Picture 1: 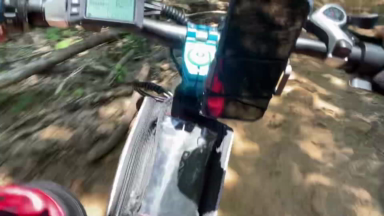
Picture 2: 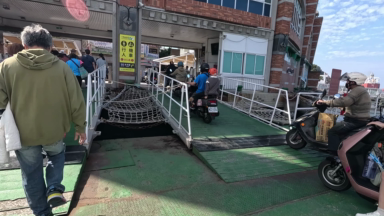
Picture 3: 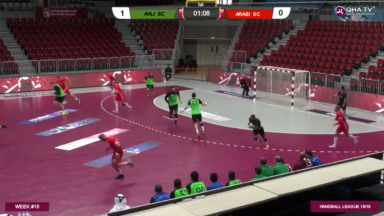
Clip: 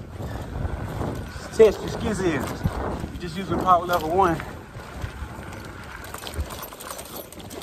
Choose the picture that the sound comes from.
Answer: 1